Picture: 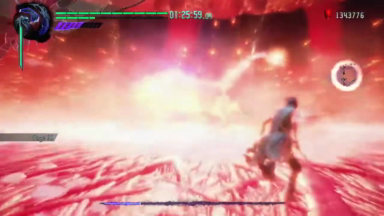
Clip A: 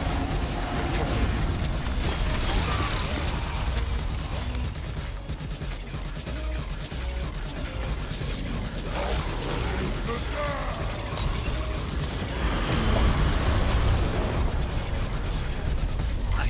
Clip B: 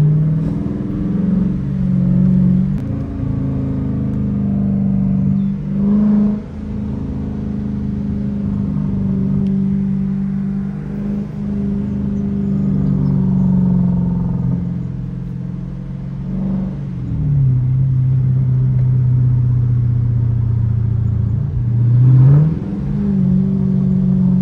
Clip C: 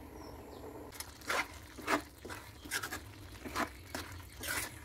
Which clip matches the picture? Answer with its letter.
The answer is A